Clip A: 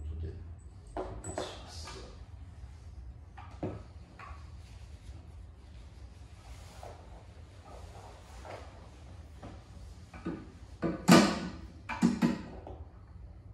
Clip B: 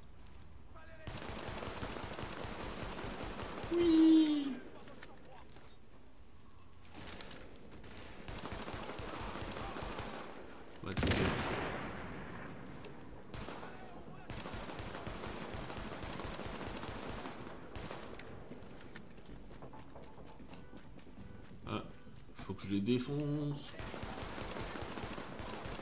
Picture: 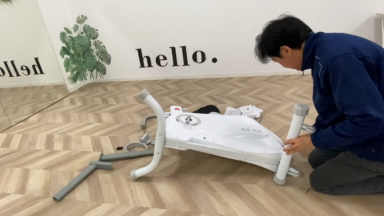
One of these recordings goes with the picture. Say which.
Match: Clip A